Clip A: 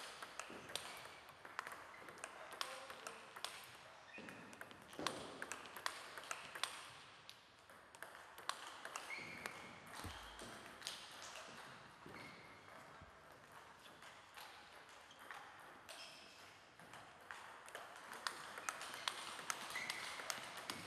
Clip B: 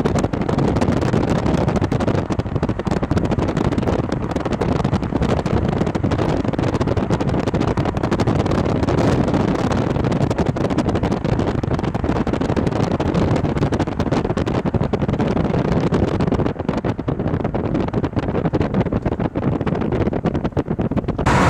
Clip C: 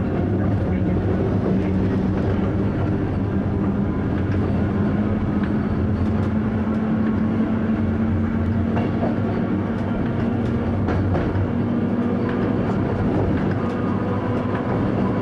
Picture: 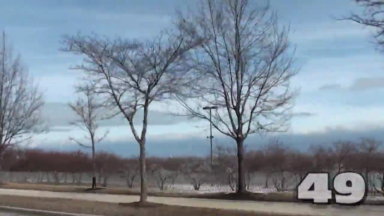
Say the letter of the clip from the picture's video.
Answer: B